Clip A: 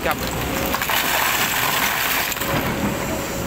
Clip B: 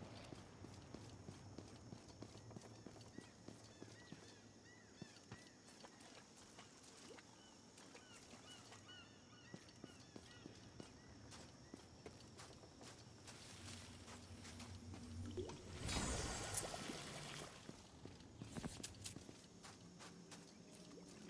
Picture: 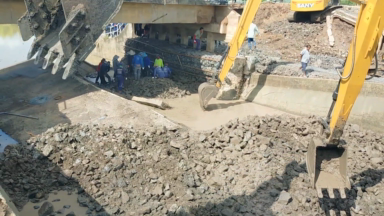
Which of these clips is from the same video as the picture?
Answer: A